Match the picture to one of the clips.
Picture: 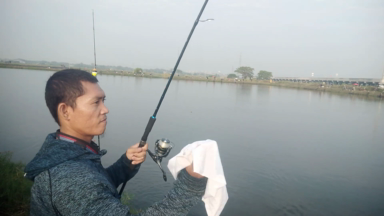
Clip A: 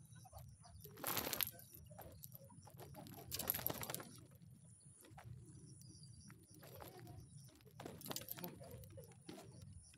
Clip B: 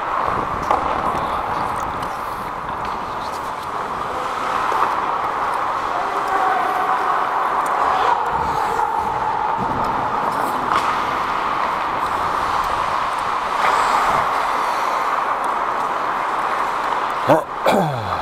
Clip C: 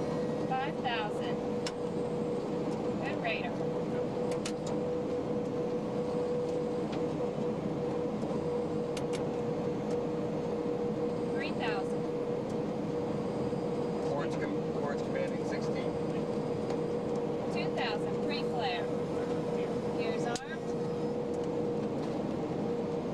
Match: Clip A